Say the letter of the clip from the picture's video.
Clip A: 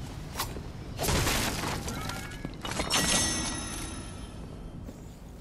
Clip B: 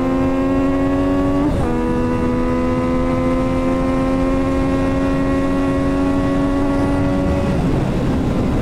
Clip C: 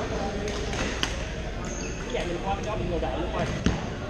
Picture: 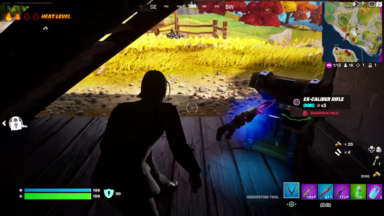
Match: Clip A